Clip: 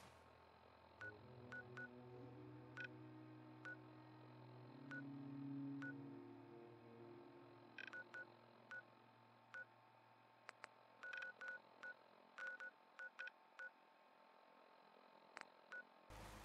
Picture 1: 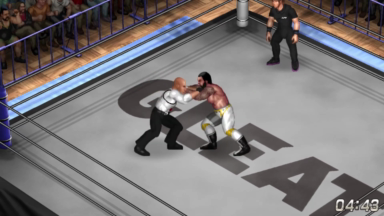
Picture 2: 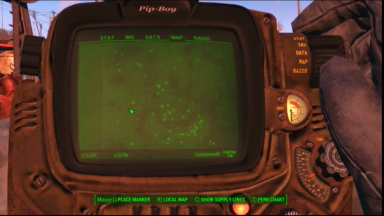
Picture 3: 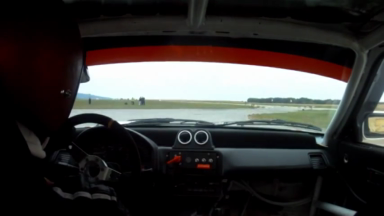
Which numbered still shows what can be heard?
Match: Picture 2